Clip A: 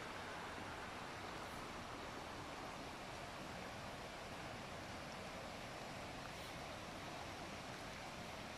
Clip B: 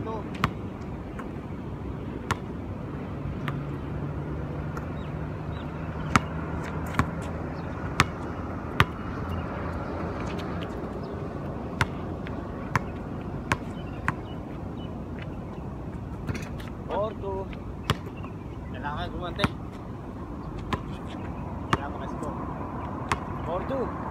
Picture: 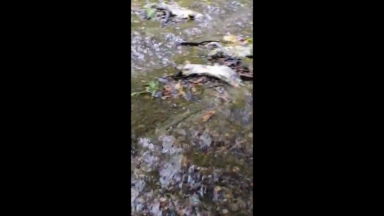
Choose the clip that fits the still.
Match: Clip A